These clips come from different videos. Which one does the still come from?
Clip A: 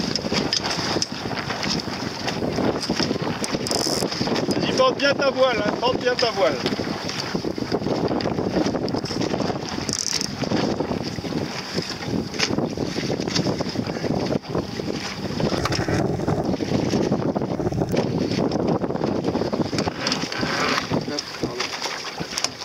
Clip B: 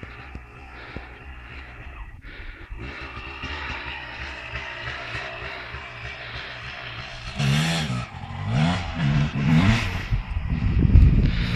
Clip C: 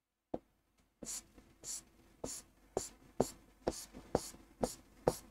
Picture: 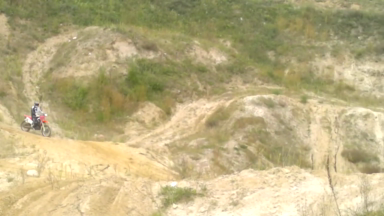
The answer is B